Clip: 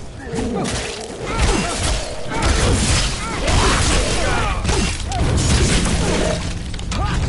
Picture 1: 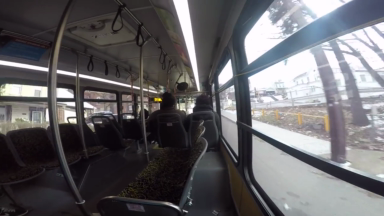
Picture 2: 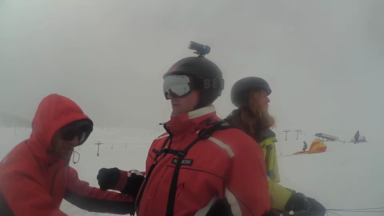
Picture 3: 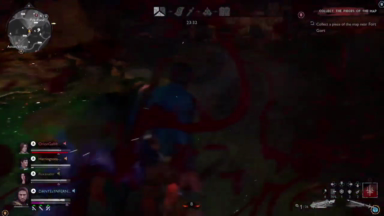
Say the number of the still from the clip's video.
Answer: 3